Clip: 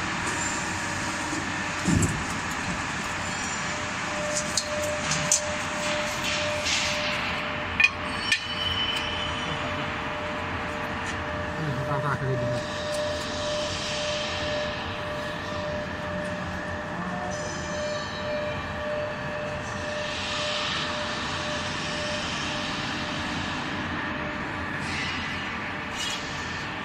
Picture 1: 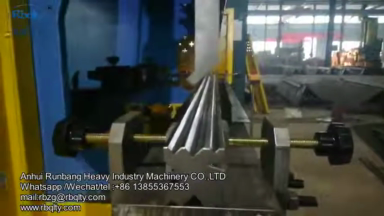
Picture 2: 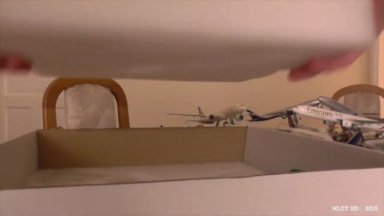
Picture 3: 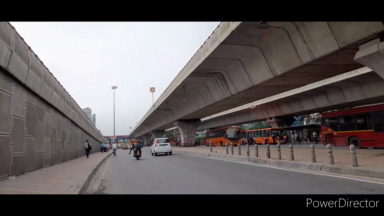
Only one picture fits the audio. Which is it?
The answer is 1